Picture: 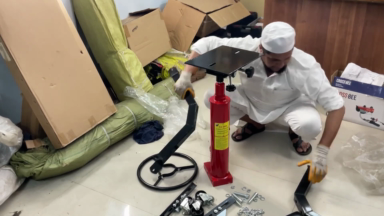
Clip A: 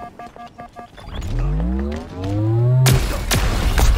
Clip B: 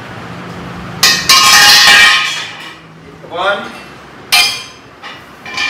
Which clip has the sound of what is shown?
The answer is B